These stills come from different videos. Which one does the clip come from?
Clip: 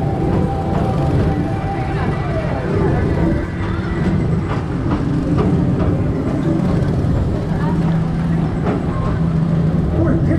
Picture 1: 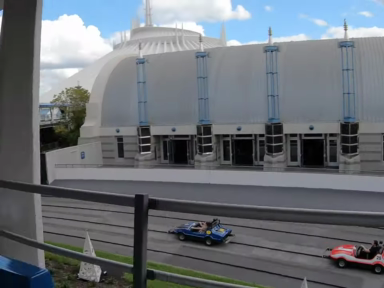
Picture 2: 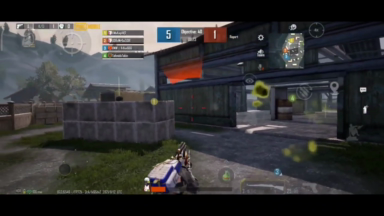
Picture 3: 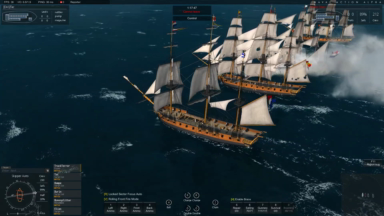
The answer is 1